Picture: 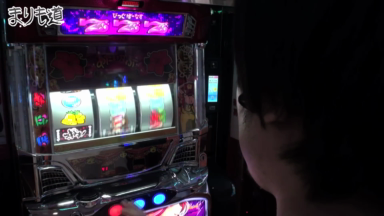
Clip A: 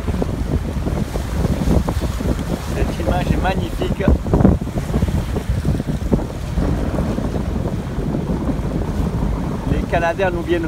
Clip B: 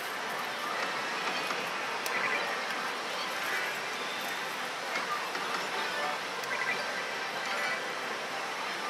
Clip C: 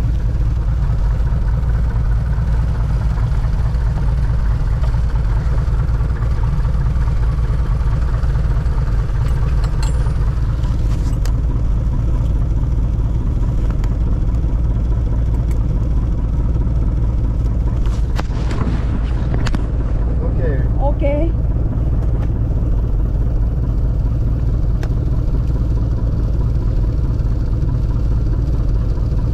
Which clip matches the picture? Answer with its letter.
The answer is B